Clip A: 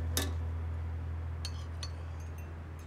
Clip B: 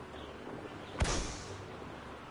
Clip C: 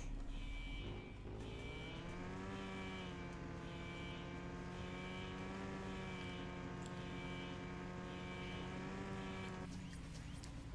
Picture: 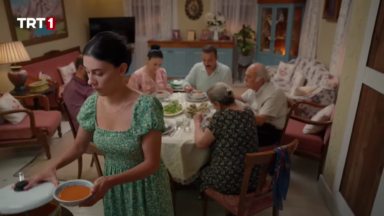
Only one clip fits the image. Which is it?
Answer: A